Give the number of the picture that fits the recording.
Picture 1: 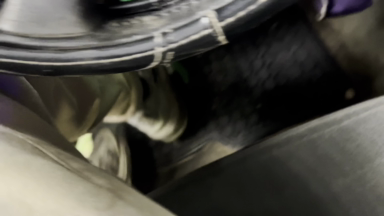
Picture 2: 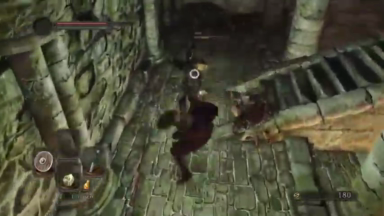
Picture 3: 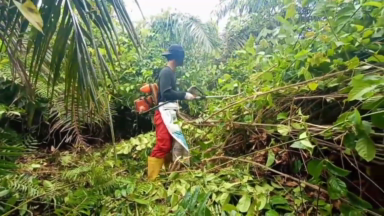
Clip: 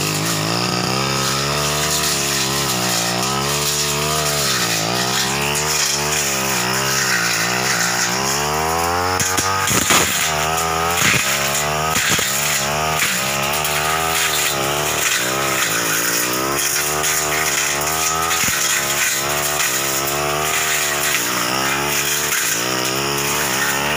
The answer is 3